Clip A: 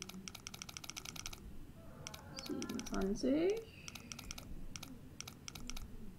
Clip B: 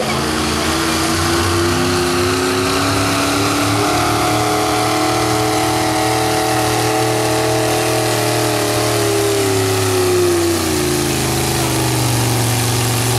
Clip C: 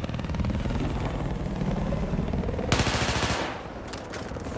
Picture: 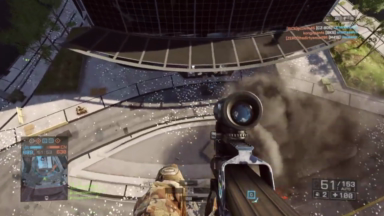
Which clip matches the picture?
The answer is C